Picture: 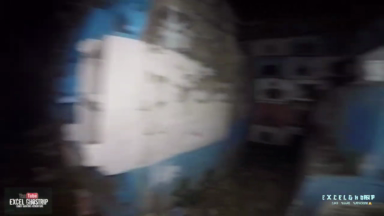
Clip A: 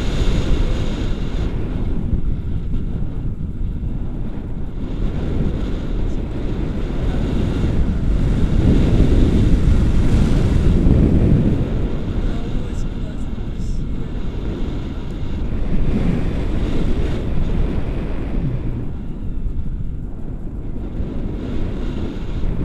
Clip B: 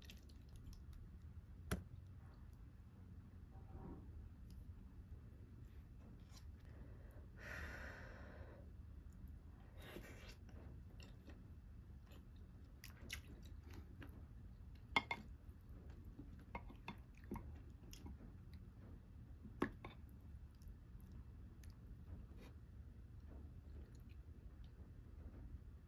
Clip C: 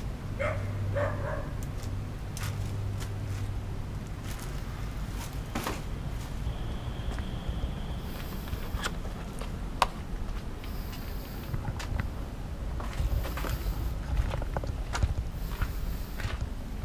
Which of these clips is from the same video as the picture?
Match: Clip C